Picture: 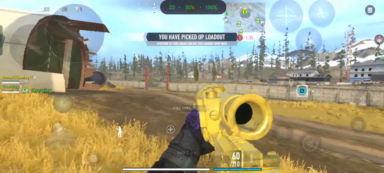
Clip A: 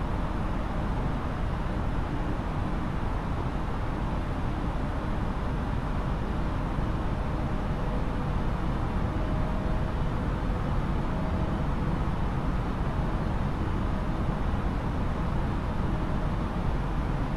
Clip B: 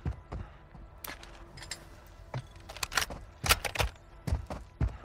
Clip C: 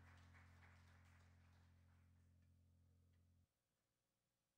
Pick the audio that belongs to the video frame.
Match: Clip B